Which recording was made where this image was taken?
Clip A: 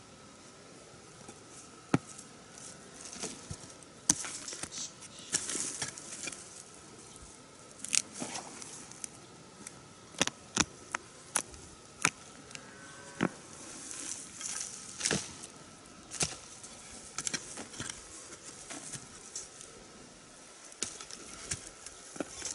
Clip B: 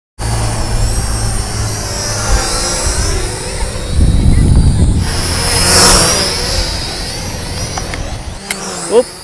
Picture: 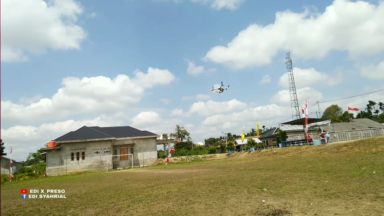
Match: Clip B